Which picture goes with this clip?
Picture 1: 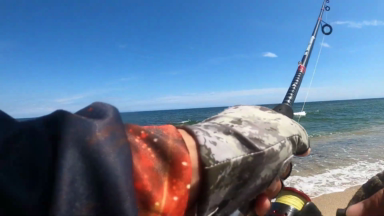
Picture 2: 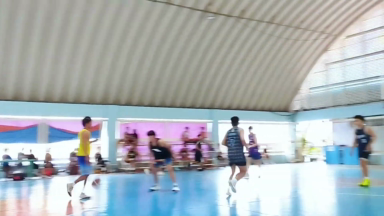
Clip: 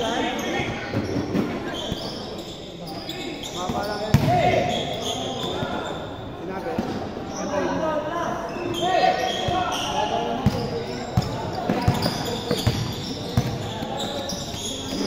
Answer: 2